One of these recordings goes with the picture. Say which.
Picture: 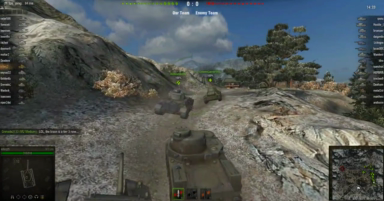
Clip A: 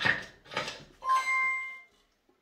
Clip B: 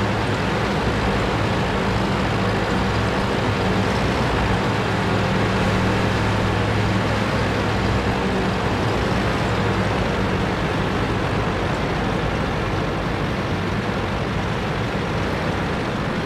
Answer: B